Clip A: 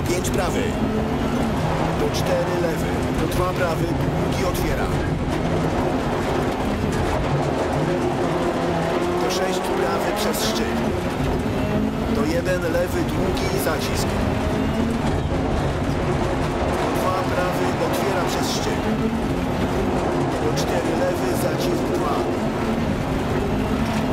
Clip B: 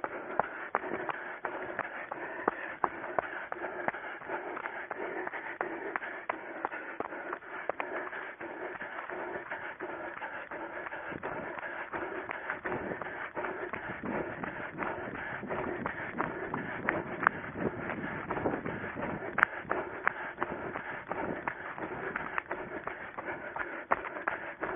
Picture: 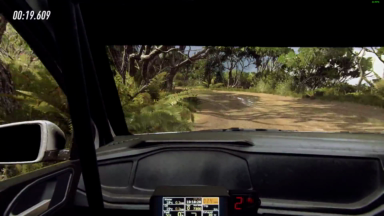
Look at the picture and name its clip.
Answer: A